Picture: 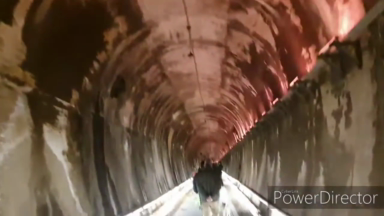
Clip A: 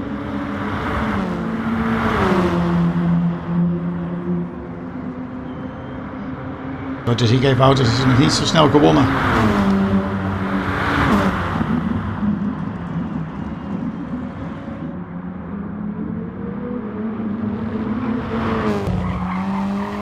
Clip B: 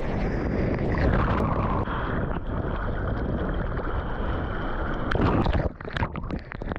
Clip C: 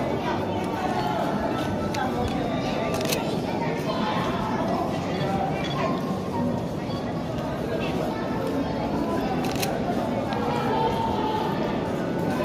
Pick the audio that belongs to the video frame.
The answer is C